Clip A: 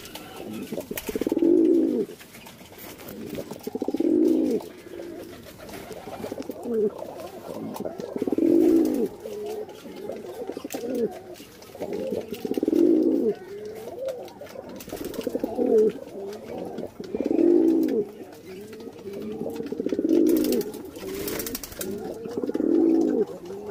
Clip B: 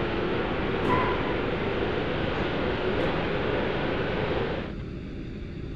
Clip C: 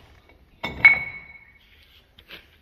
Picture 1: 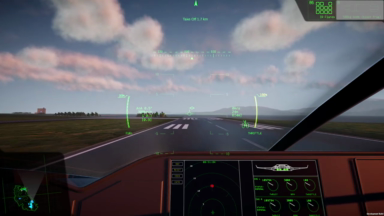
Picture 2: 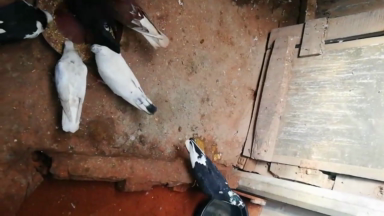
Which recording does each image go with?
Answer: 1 B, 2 A